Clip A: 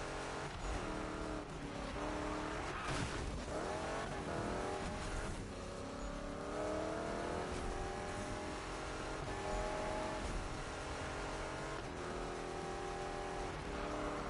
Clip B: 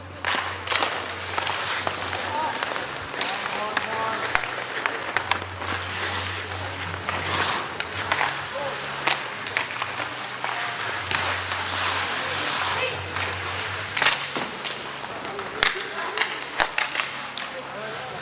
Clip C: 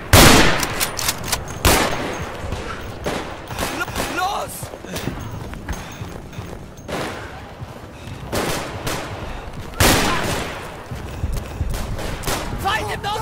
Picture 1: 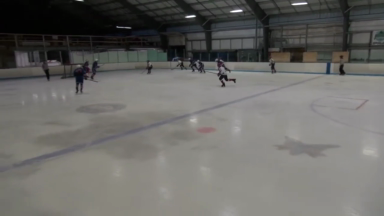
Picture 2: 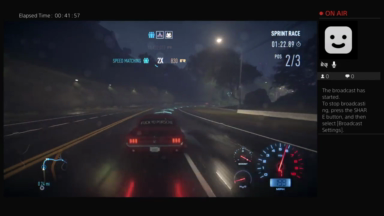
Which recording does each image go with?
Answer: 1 B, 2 A